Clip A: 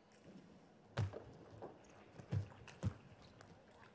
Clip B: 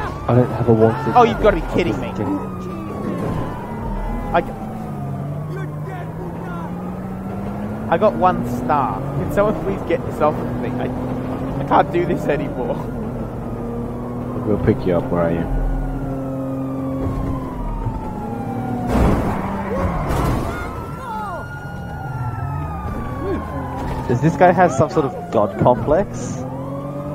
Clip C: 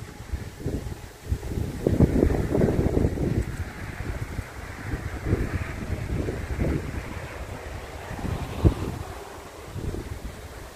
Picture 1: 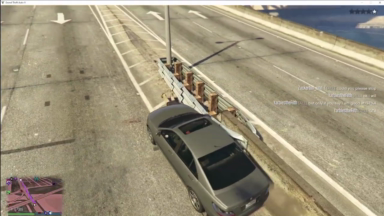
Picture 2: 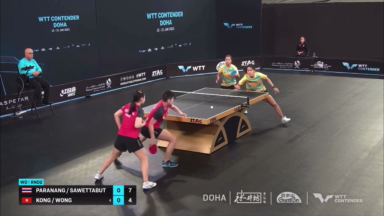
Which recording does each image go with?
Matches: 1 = B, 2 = A